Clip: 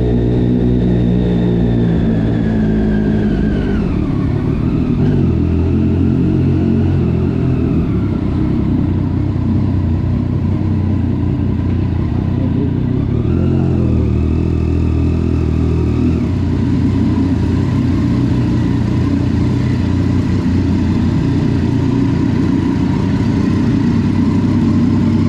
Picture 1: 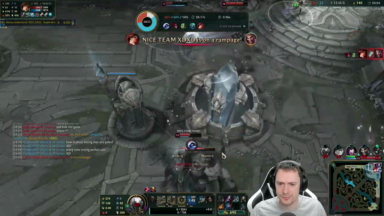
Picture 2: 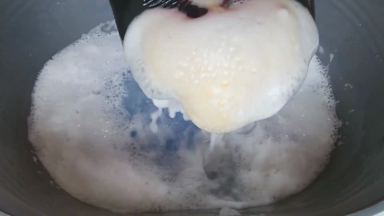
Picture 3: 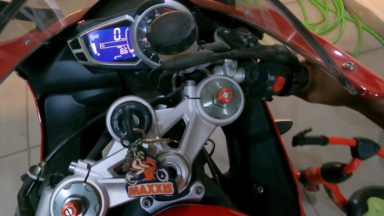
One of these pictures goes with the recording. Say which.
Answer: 3